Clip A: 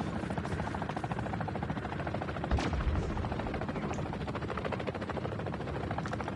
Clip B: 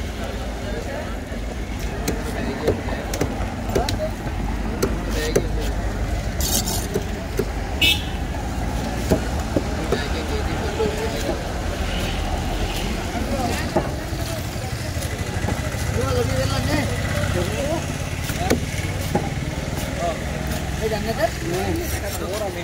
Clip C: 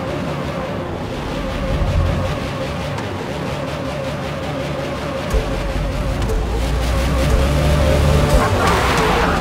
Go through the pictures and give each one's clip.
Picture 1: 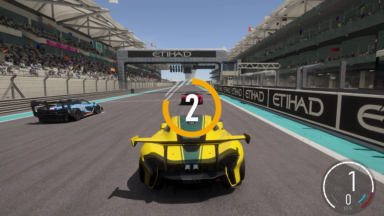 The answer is C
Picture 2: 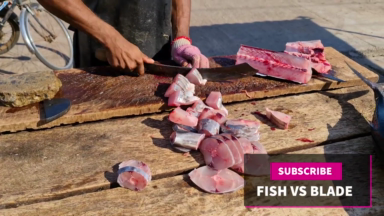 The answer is B